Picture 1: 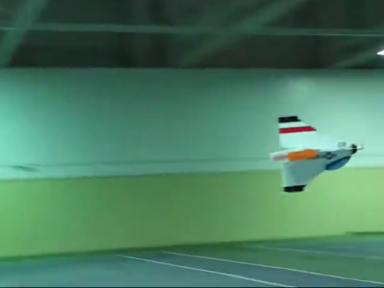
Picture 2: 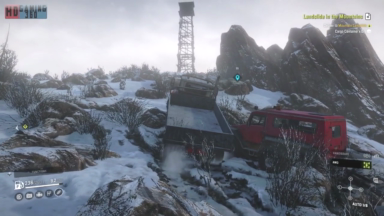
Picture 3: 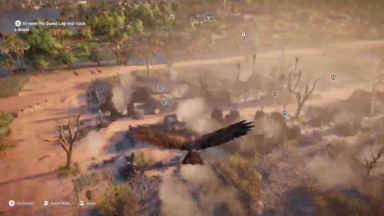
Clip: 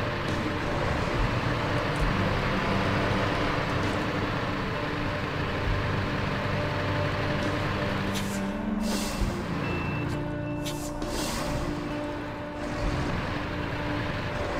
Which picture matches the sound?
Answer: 2